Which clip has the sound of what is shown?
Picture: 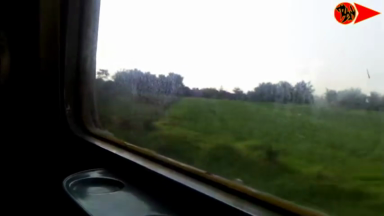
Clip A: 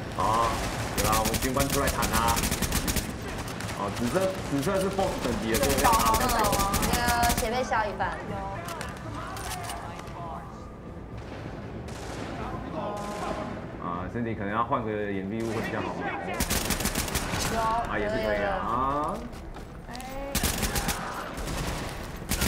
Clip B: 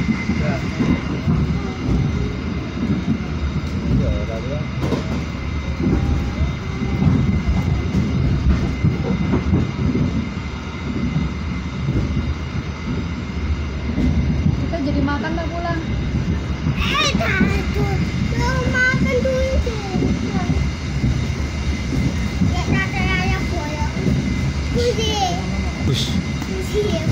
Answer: B